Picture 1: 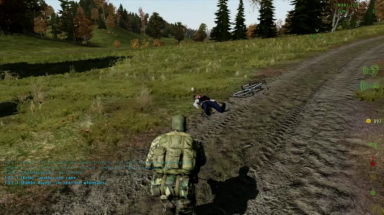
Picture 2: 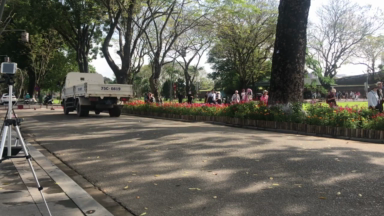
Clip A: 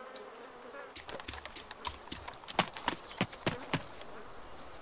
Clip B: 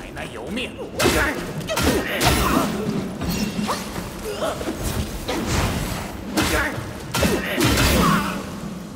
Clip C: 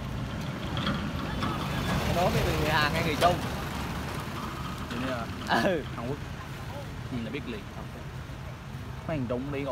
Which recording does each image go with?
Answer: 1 A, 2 C